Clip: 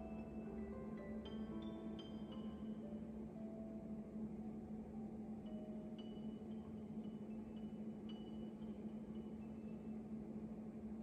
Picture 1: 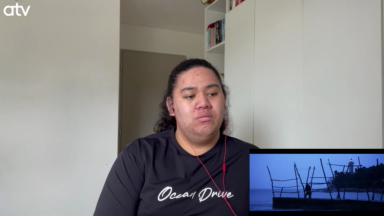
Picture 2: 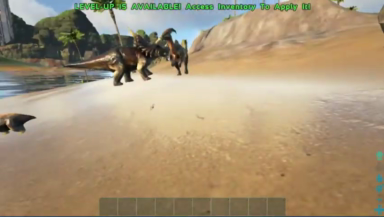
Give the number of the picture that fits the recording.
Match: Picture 1